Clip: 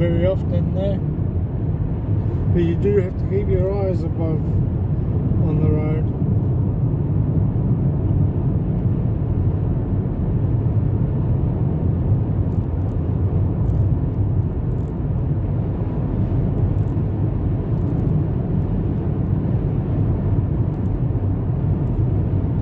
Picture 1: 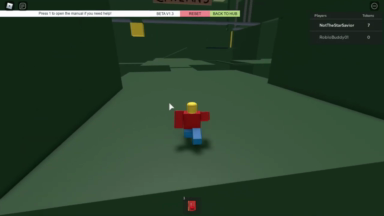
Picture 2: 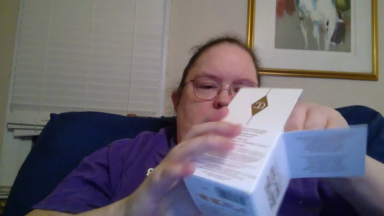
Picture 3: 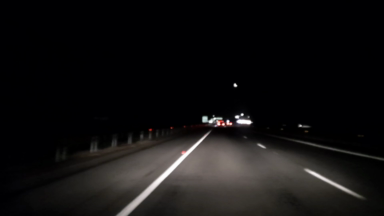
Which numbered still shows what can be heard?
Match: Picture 3